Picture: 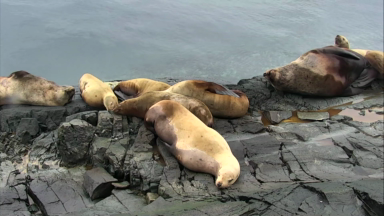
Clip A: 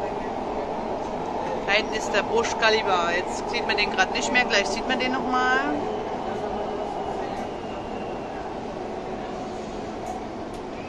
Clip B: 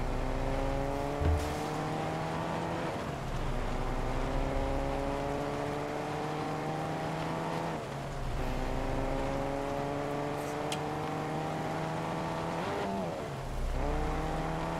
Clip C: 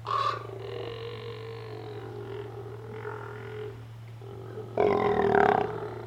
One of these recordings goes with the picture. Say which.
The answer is C